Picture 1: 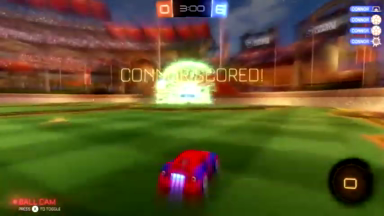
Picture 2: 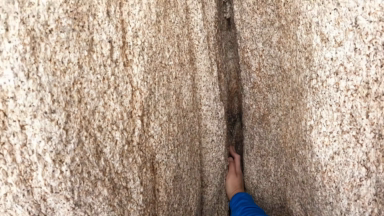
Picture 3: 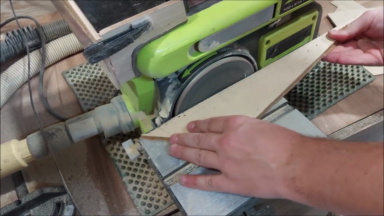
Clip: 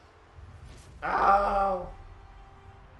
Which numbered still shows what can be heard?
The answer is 1